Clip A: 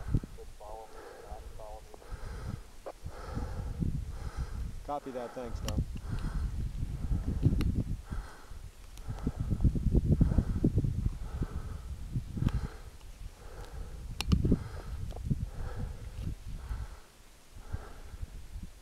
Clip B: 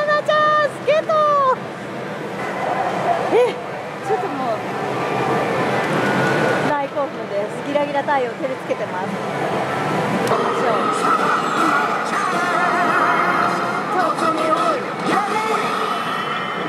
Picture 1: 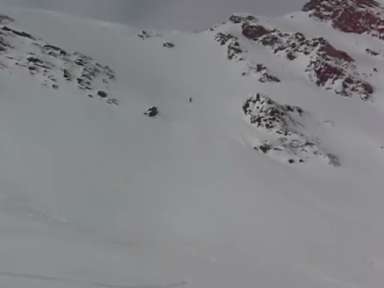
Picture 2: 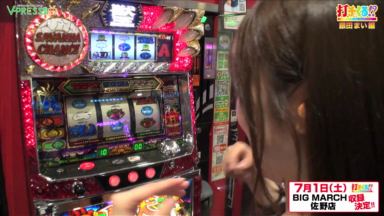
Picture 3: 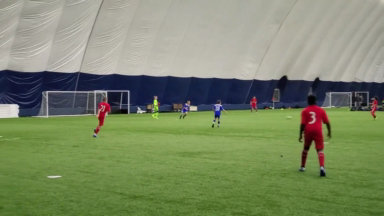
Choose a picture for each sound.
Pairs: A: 1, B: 2